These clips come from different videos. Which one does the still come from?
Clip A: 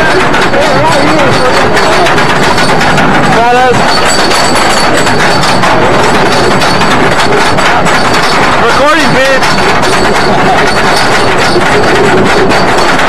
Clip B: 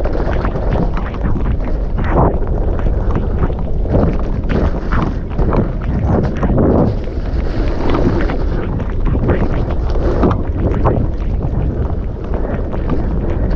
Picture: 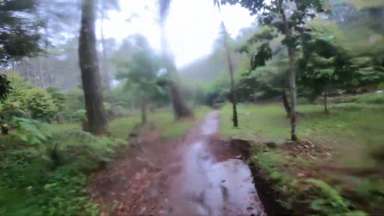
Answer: B